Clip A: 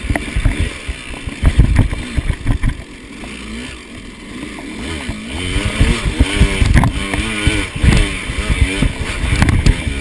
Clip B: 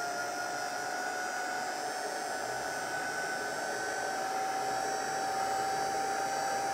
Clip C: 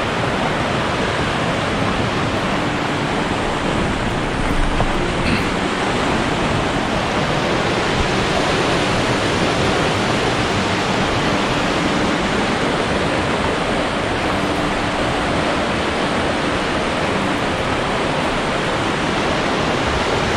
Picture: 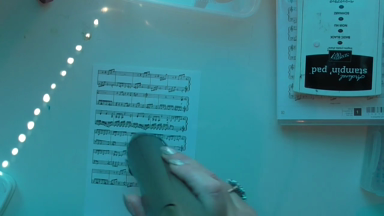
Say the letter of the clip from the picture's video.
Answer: B